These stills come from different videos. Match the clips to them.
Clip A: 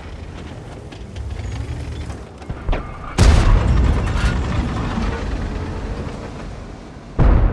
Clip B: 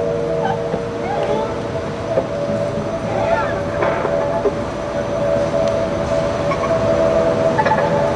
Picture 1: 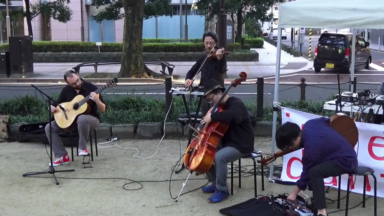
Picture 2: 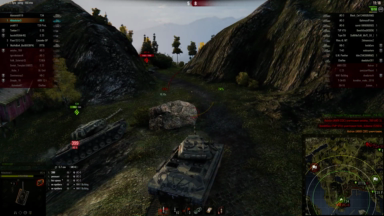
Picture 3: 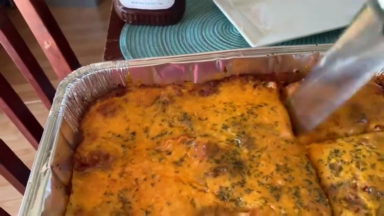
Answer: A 2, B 1